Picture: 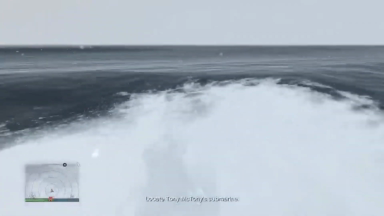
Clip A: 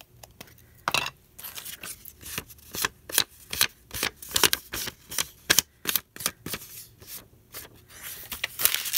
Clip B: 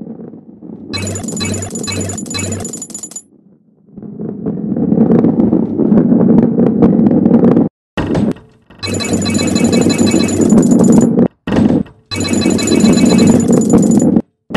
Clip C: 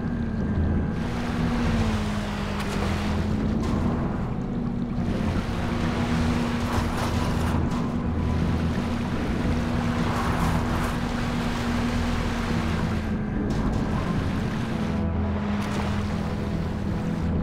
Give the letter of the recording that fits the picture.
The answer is C